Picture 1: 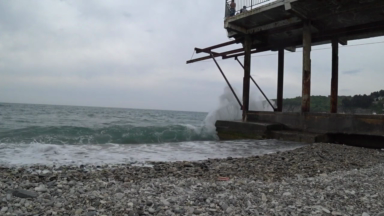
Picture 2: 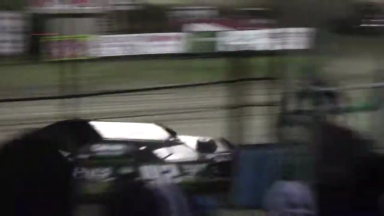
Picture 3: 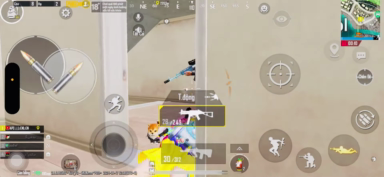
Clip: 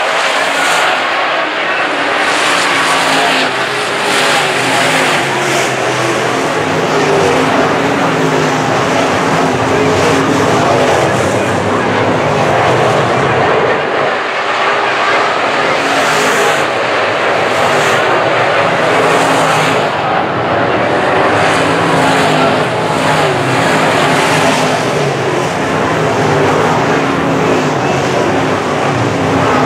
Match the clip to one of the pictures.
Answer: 2